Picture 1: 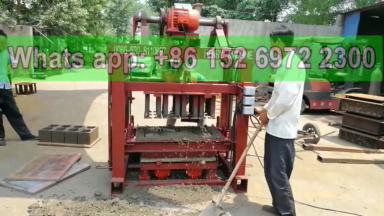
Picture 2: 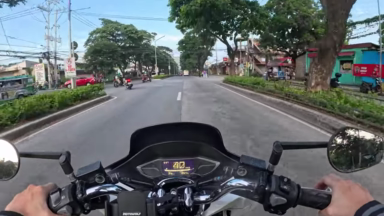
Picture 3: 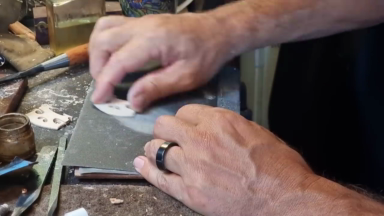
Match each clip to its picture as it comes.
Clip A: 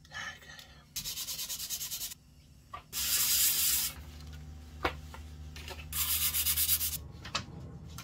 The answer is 3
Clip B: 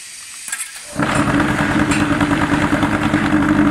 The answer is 1